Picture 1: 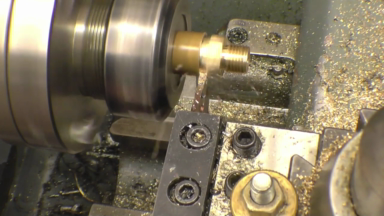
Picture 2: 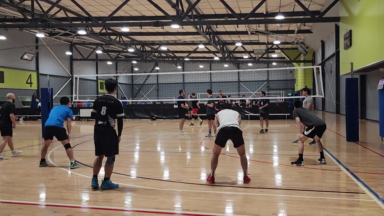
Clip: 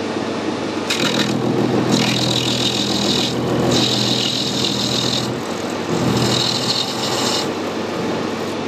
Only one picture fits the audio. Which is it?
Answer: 1